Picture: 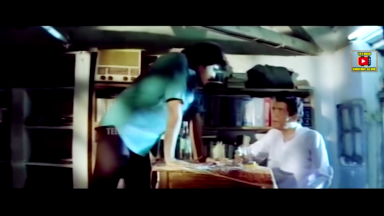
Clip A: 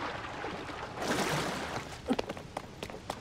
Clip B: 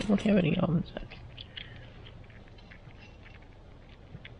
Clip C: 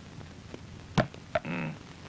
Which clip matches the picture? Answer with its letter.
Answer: C